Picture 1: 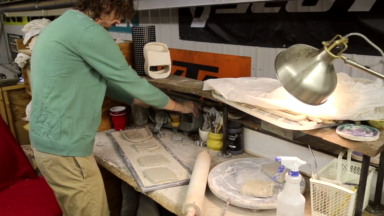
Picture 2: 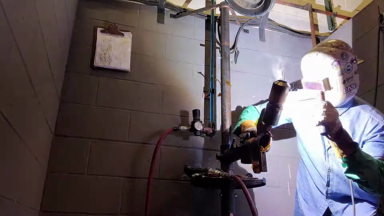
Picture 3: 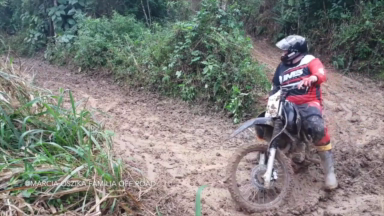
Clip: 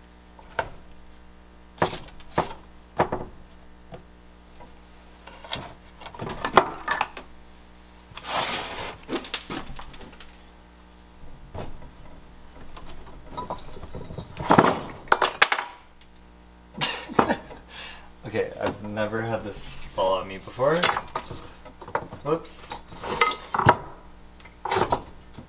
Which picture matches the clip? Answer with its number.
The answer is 1